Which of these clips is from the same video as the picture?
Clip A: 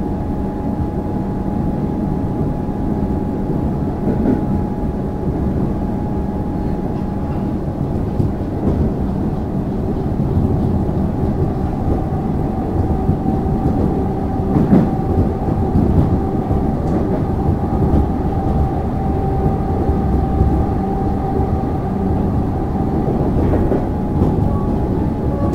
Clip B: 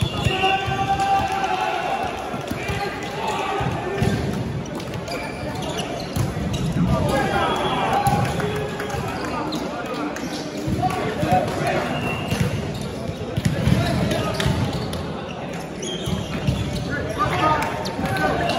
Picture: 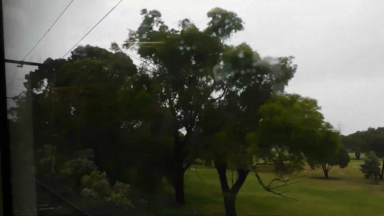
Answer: A